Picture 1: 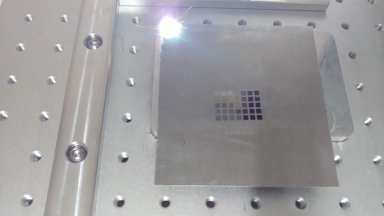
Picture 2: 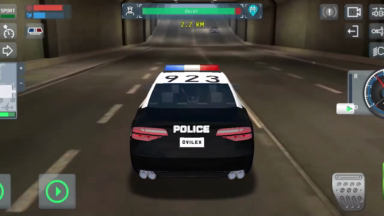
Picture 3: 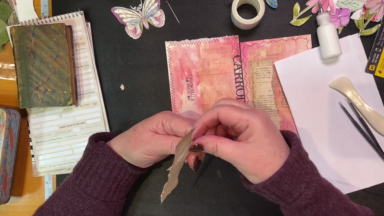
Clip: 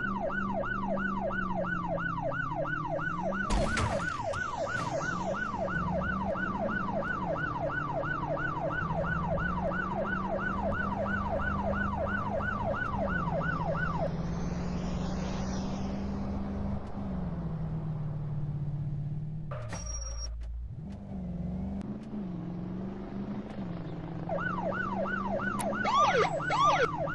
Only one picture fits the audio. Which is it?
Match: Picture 2